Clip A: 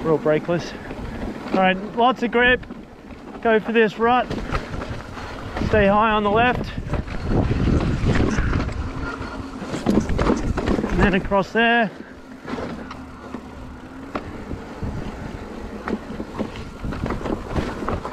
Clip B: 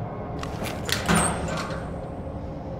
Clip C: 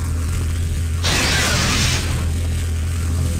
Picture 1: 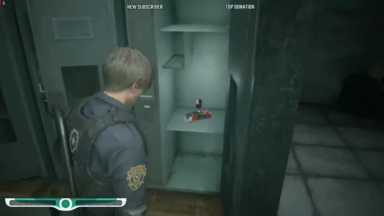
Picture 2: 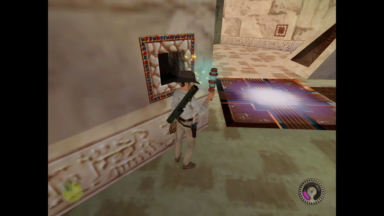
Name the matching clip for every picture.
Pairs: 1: B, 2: C